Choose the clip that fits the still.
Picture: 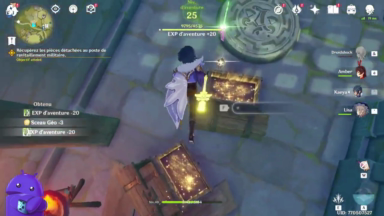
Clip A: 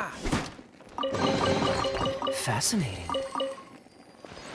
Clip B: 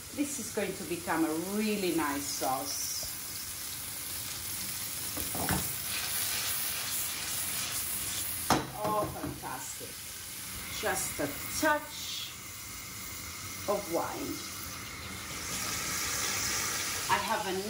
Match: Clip A